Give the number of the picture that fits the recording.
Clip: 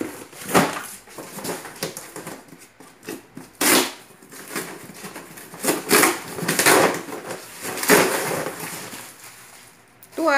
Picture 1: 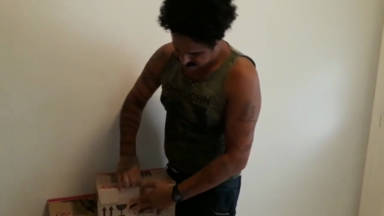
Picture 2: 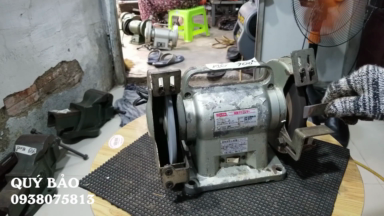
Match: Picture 1